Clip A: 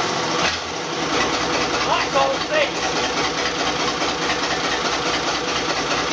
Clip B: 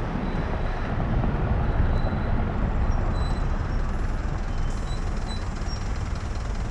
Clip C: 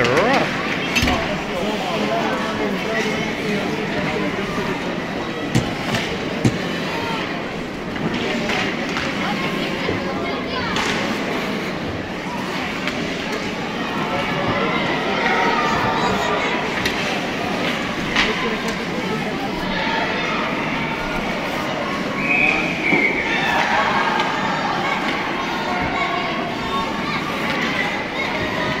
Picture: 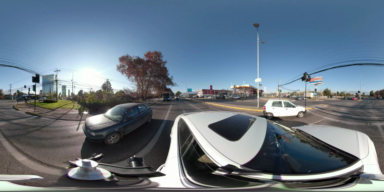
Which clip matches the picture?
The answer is B